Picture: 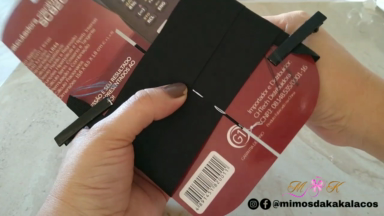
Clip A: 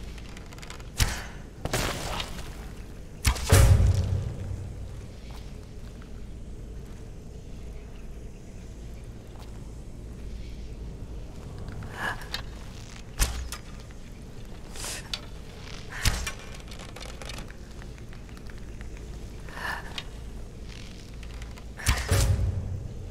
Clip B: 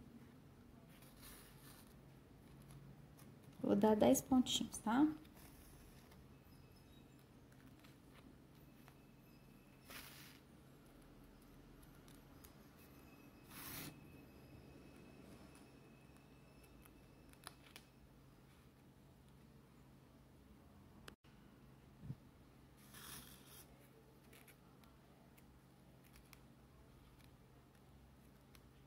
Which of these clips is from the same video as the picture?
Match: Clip B